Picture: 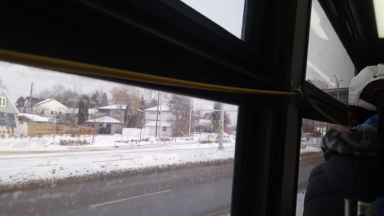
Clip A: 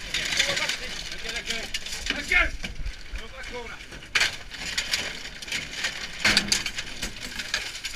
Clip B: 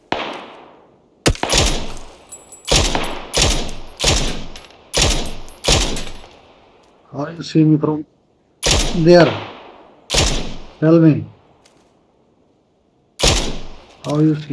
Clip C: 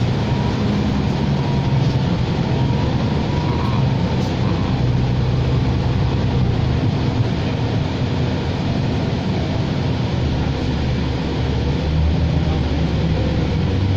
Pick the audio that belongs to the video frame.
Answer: C